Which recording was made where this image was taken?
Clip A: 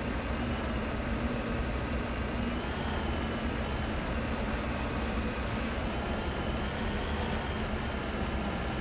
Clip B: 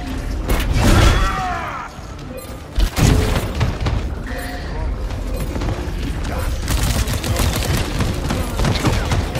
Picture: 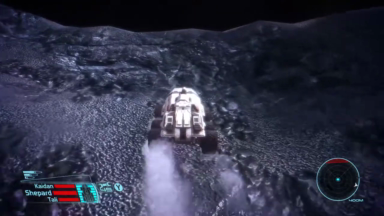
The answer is A